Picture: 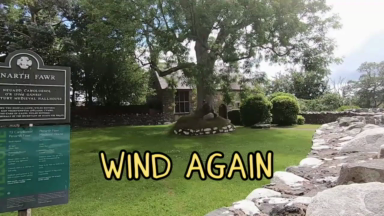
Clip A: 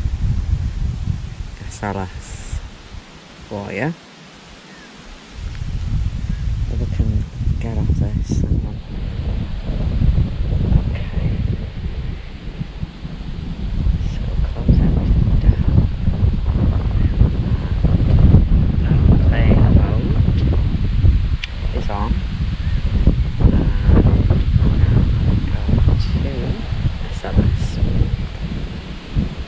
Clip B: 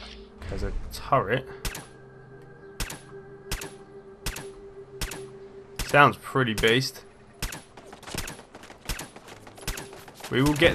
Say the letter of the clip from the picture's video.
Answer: A